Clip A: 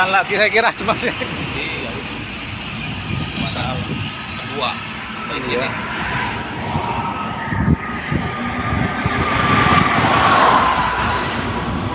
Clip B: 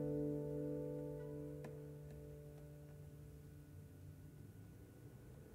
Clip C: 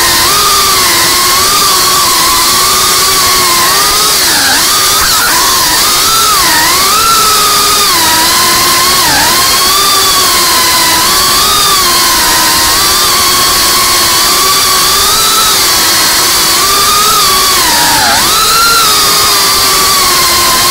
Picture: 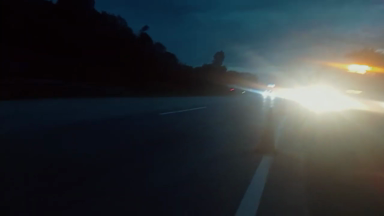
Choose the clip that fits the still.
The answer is A